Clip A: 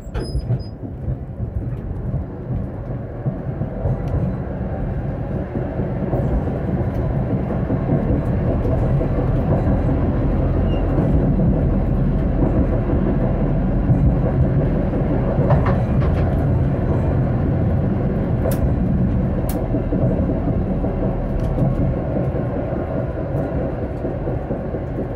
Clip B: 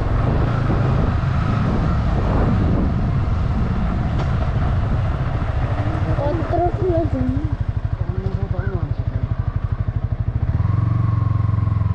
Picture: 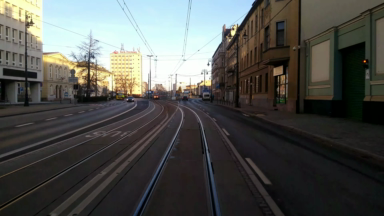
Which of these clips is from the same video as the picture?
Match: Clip A